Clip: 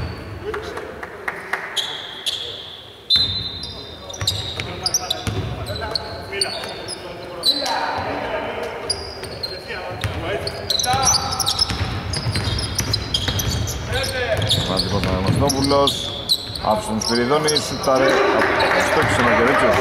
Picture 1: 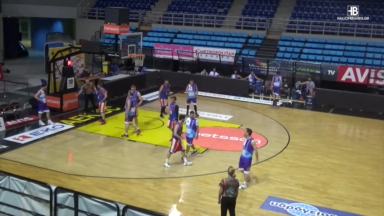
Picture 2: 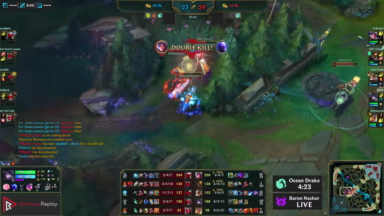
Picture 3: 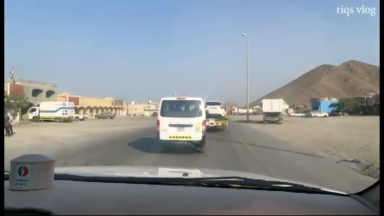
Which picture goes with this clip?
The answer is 1